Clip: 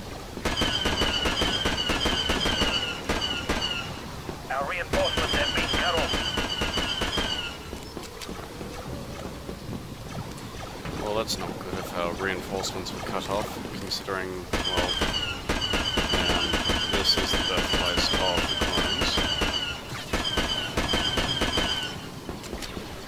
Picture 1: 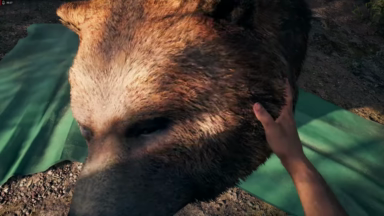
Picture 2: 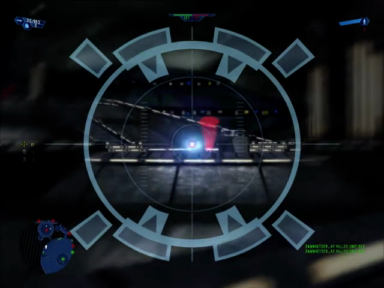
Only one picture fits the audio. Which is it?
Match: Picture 2